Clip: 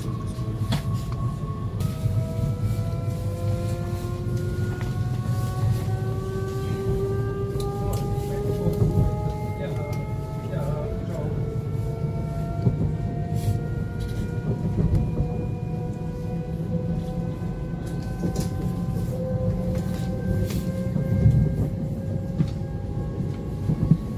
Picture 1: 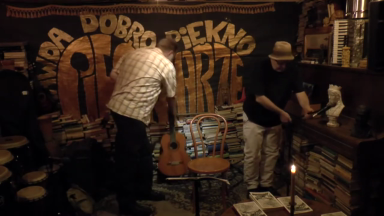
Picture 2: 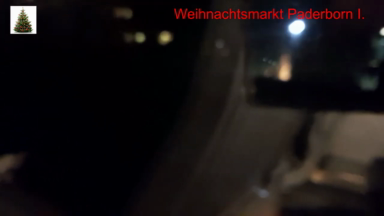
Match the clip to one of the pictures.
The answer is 2